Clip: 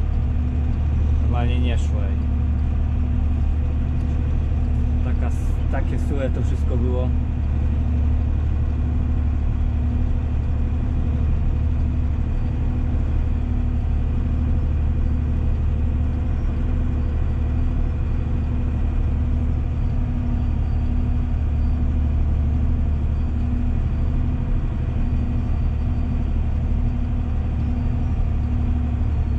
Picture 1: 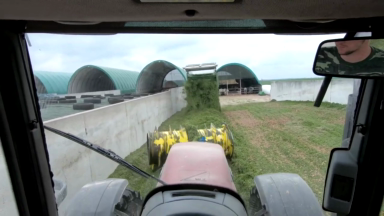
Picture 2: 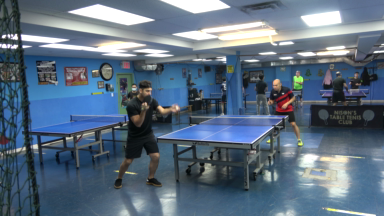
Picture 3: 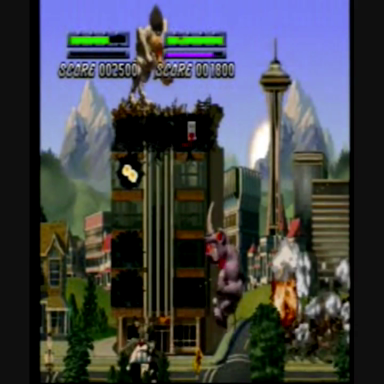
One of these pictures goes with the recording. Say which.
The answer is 1